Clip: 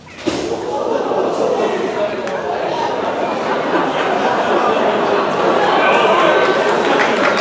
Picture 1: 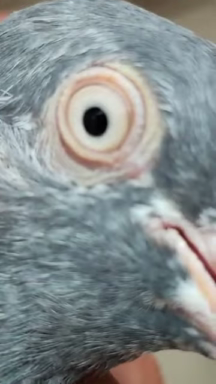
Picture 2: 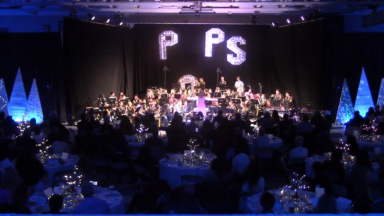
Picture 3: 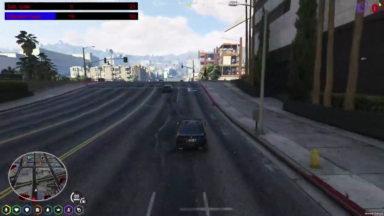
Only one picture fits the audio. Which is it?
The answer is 2